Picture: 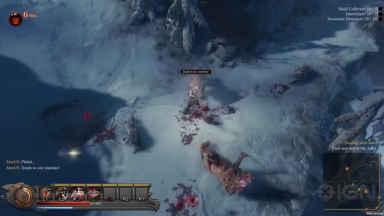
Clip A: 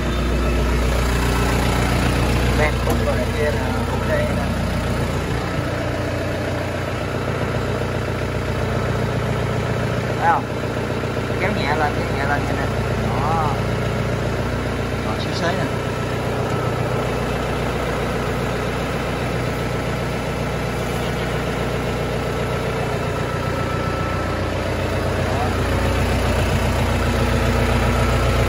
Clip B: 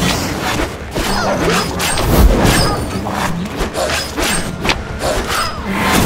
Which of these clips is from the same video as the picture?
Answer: B